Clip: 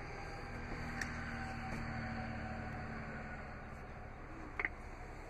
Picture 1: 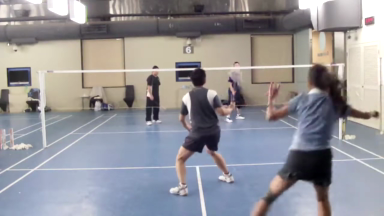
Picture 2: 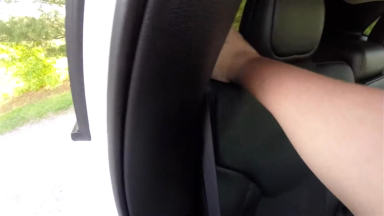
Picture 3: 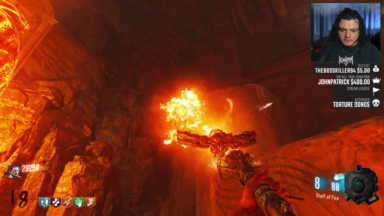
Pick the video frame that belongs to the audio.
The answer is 2